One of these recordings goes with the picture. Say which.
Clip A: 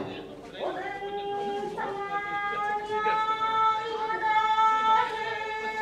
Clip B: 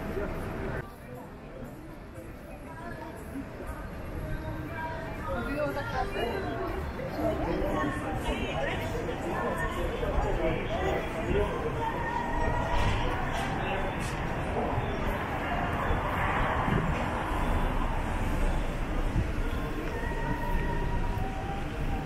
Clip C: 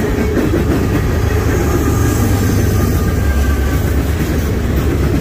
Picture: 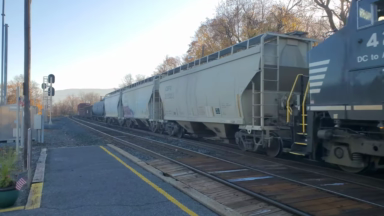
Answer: C